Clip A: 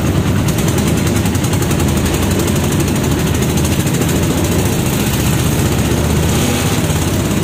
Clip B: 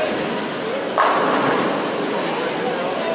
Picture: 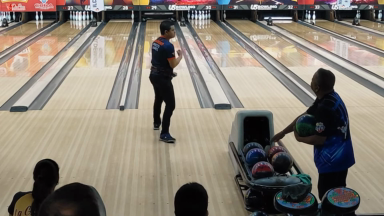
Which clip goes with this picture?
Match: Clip B